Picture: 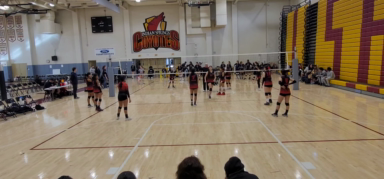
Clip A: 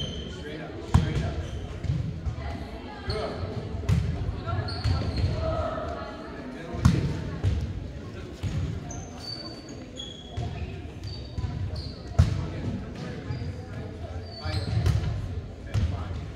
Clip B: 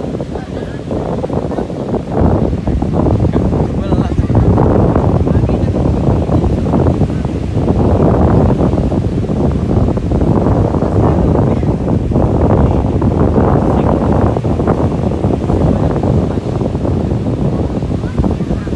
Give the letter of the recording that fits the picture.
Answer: A